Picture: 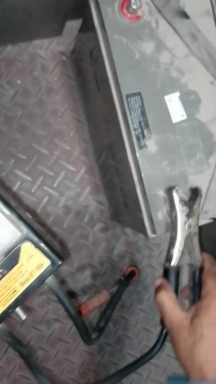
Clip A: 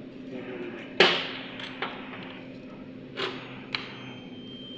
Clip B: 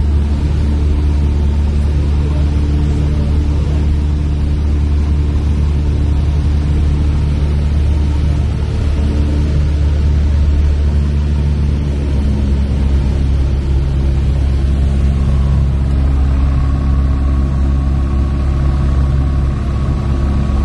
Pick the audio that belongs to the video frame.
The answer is A